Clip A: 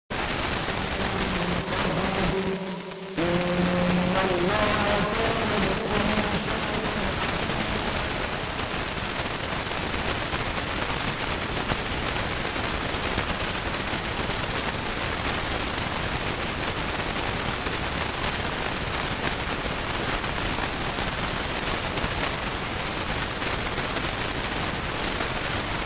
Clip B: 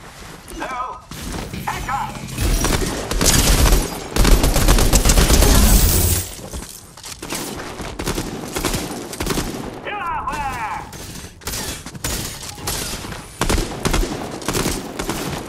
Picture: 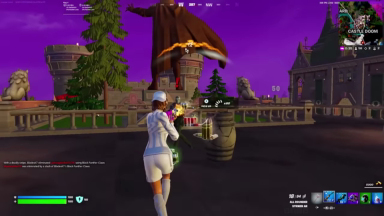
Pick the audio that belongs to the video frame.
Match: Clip B